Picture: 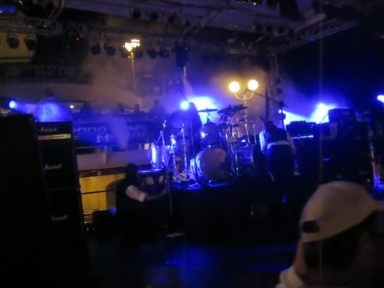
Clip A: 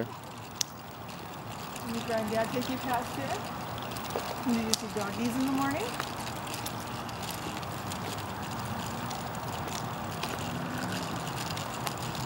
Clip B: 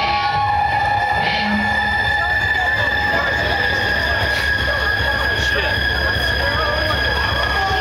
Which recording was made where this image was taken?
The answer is B